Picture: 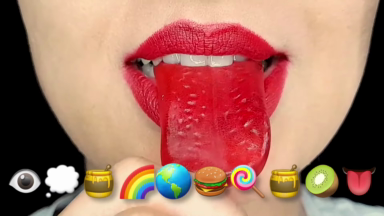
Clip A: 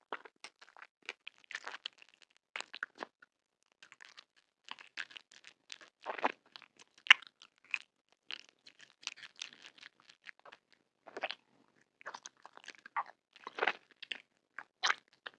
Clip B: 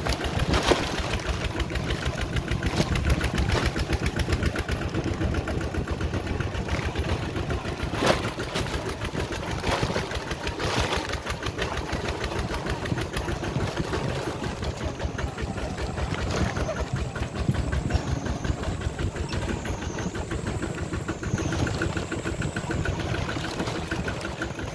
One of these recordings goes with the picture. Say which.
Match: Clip A